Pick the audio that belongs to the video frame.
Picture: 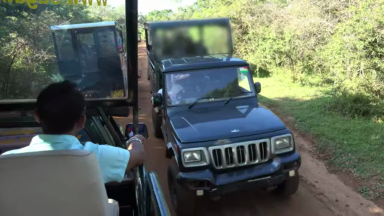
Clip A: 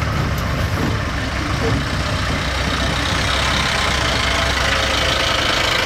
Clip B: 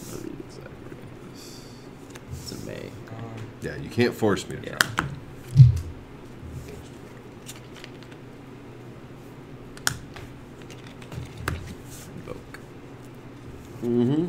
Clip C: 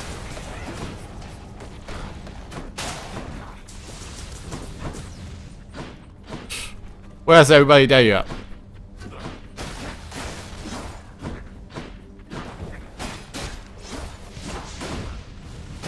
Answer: A